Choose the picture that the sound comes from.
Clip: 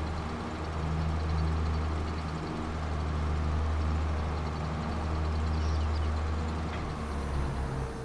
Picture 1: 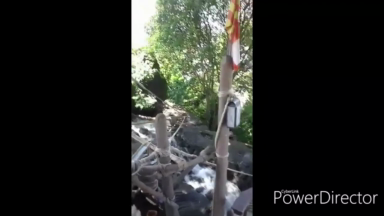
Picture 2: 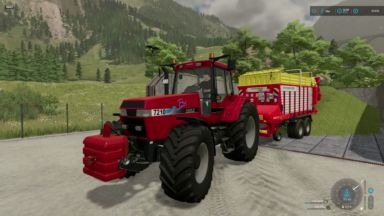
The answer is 2